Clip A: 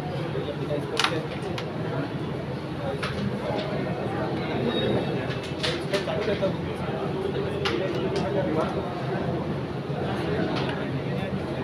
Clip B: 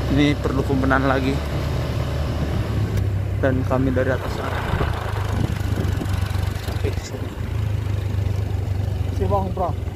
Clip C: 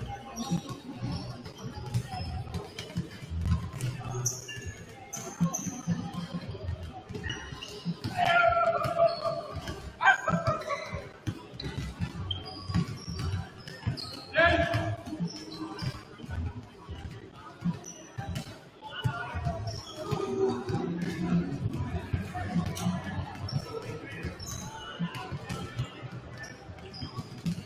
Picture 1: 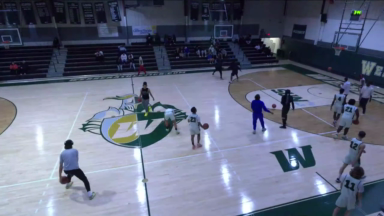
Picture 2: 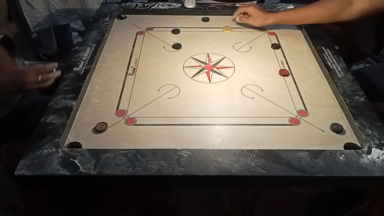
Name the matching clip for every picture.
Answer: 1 C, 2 A